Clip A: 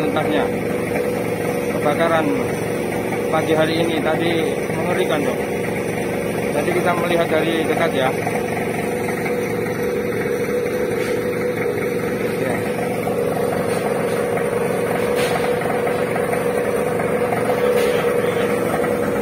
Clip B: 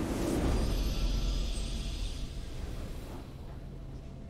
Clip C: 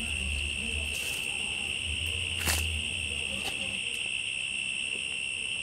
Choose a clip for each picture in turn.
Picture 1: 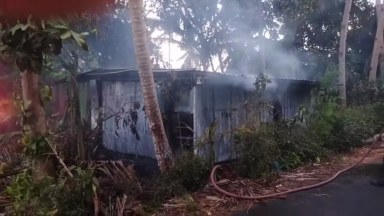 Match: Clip A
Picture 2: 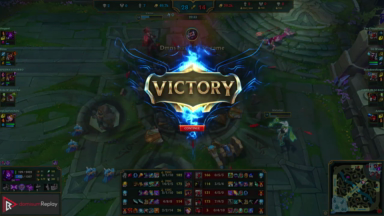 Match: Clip B